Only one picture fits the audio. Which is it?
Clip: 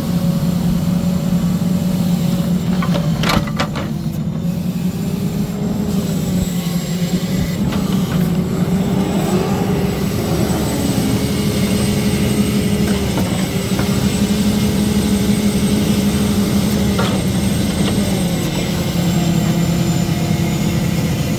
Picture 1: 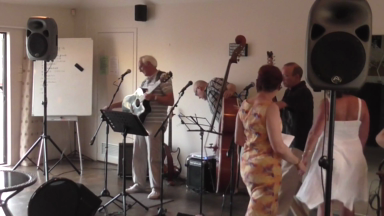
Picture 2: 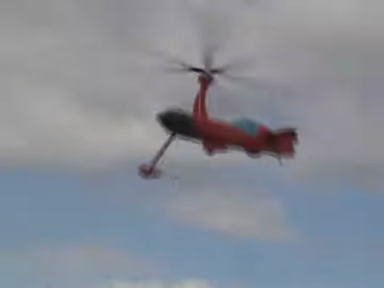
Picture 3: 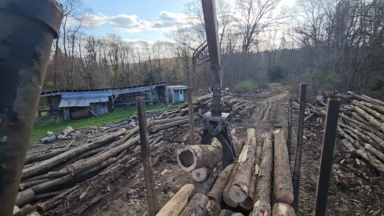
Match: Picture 3